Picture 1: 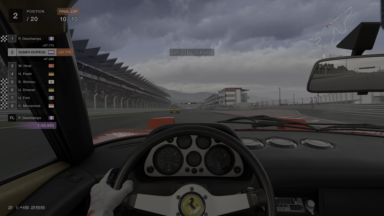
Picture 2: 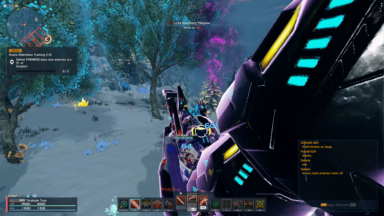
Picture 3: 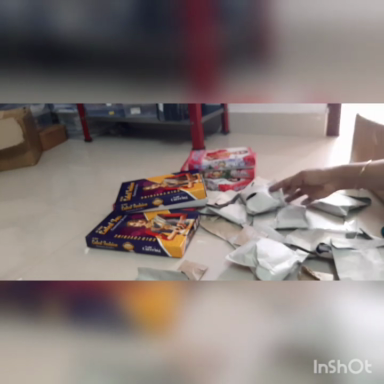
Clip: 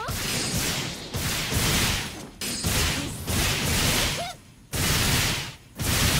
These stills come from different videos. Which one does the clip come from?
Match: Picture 2